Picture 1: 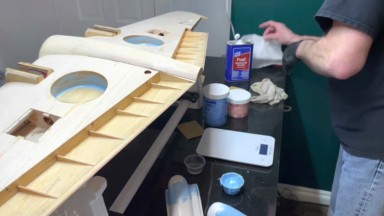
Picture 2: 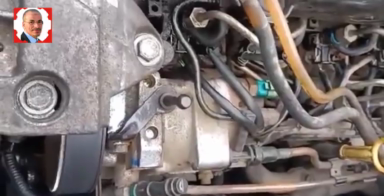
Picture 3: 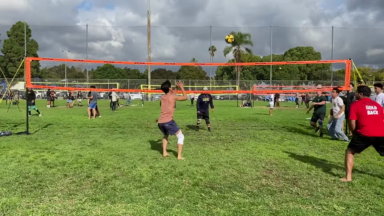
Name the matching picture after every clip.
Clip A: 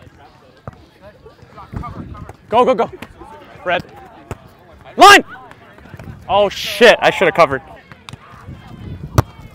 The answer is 3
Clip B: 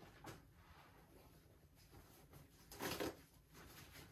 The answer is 1